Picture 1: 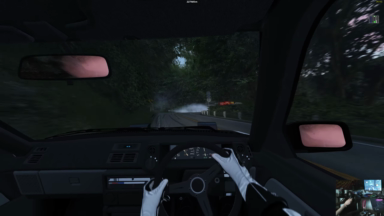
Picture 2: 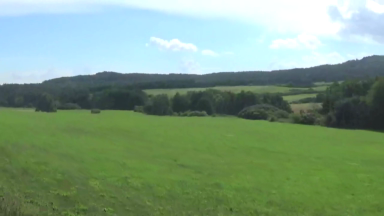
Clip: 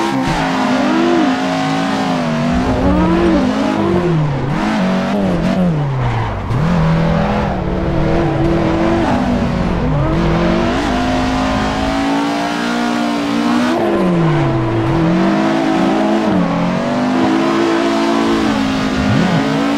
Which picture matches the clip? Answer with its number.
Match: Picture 1